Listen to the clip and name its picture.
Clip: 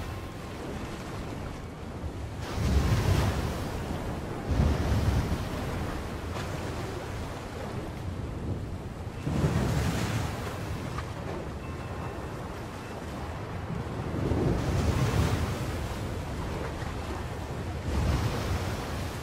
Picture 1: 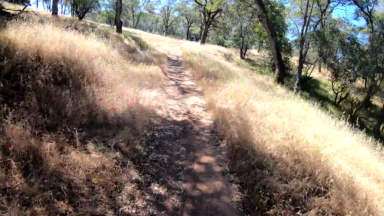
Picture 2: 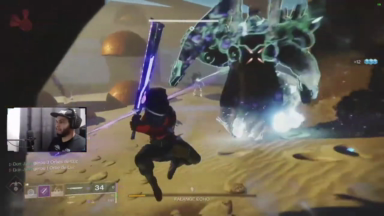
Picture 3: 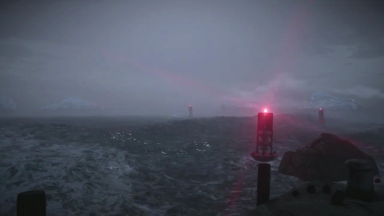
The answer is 3